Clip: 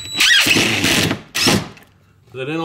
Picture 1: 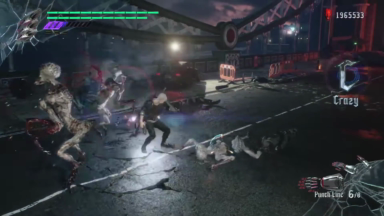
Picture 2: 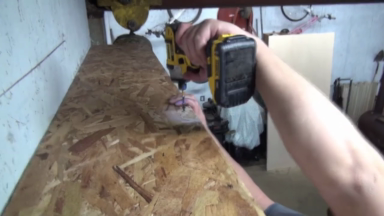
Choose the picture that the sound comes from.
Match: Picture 2